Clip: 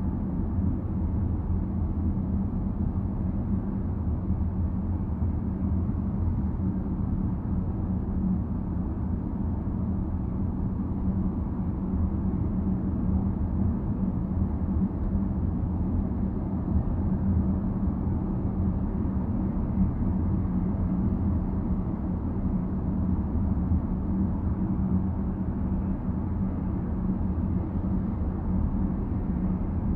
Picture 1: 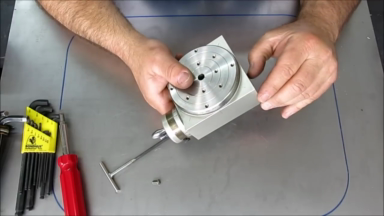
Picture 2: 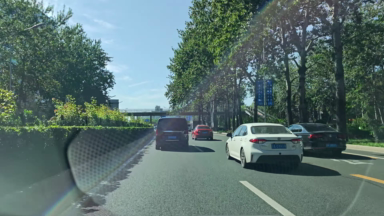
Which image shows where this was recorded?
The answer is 2